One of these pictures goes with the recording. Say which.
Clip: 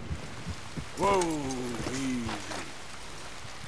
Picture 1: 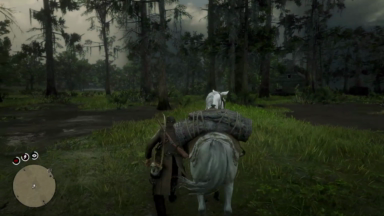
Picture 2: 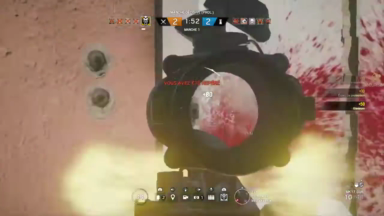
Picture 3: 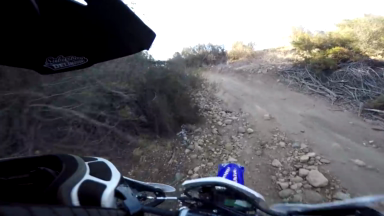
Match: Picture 1